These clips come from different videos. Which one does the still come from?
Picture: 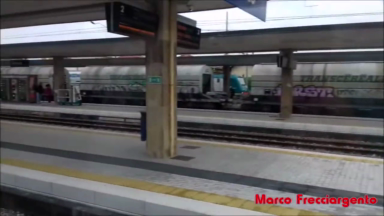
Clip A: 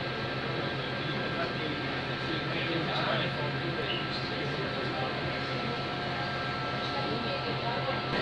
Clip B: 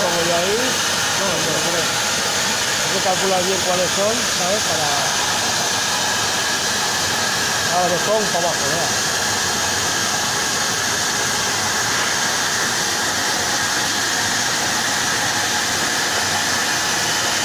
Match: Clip A